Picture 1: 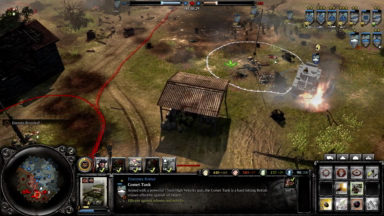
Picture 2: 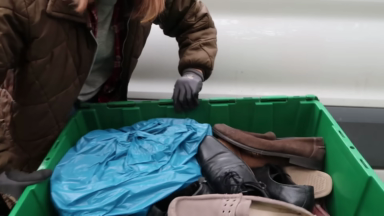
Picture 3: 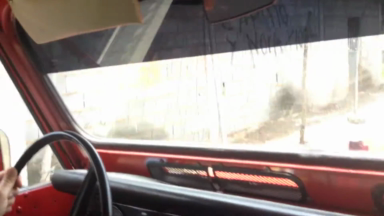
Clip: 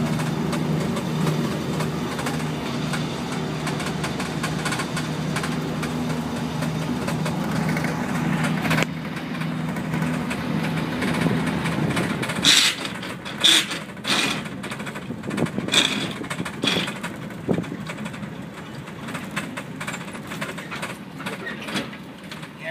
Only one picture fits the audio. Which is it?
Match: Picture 3